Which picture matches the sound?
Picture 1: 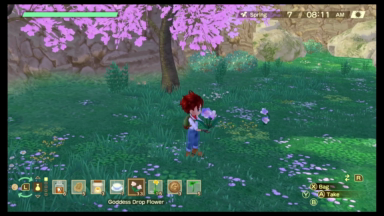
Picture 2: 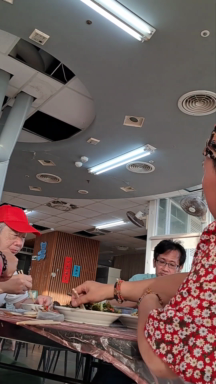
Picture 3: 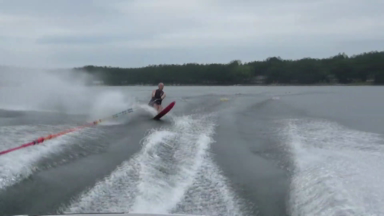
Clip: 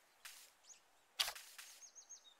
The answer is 1